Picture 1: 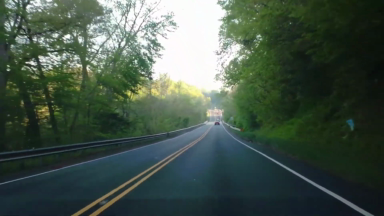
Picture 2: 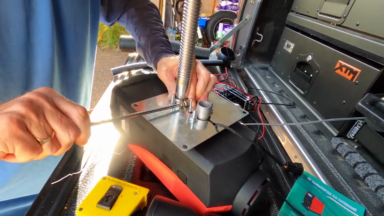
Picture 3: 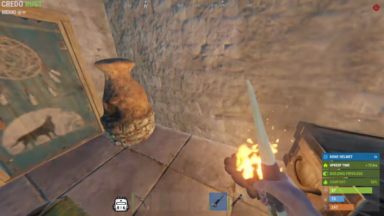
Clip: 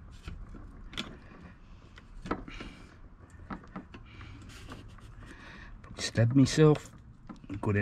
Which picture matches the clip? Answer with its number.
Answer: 2